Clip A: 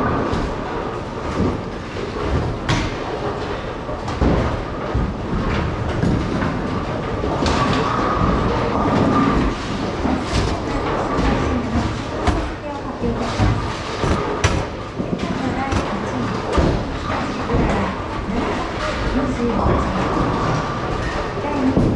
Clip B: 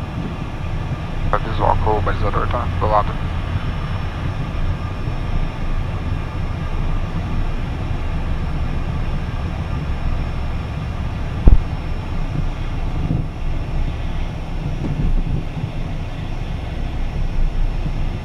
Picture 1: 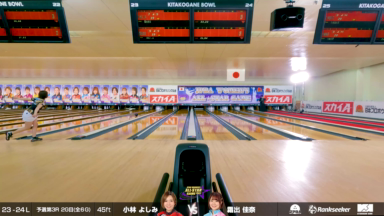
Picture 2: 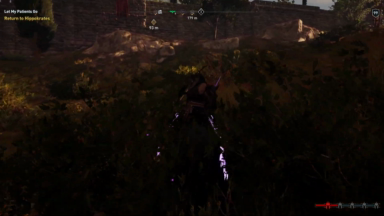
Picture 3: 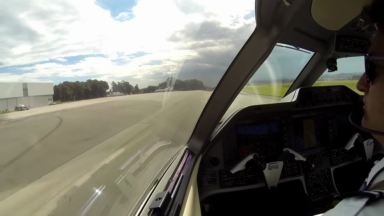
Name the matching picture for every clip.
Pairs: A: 1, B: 3